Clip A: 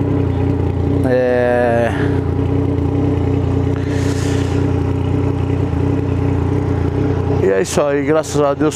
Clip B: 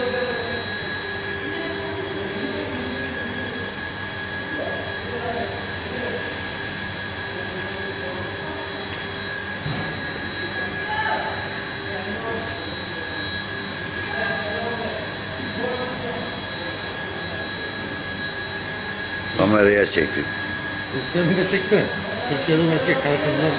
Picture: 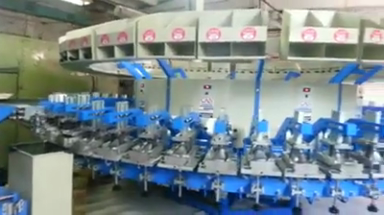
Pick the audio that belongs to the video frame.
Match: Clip B